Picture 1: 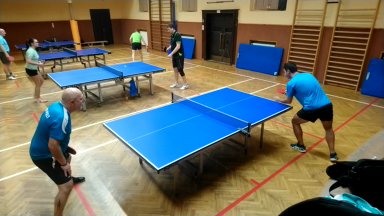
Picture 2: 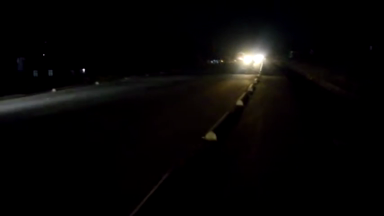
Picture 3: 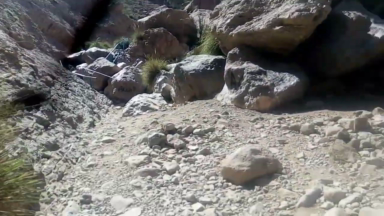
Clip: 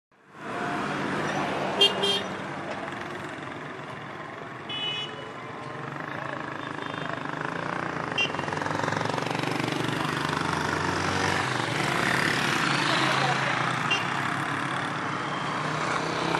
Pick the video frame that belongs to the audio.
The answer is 2